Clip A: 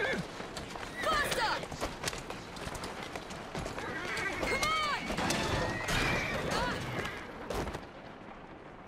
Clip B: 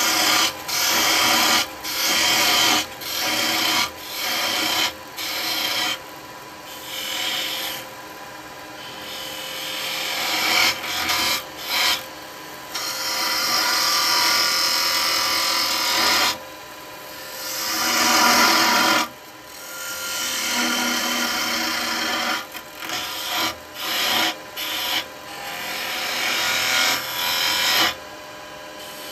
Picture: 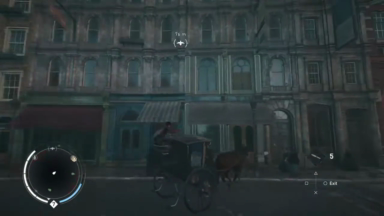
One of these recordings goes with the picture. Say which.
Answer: A